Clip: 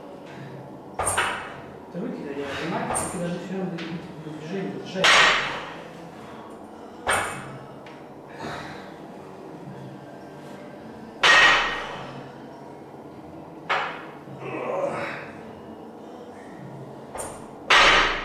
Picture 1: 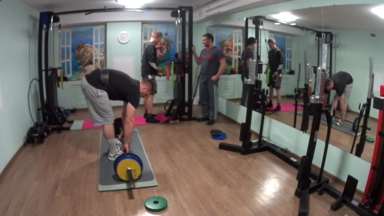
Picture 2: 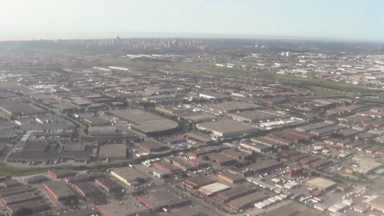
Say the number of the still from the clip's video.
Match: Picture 1